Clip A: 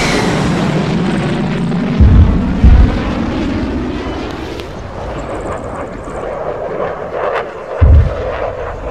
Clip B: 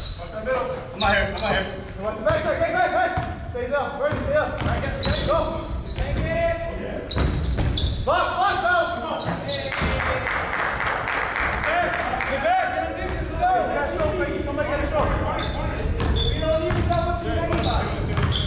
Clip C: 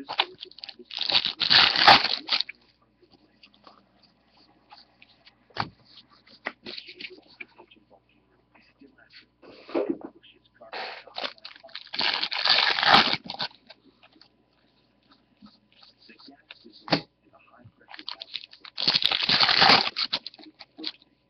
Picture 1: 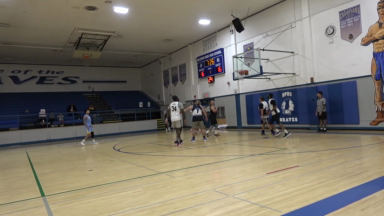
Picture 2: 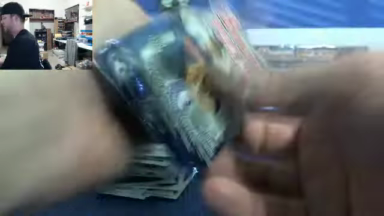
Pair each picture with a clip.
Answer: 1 B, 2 C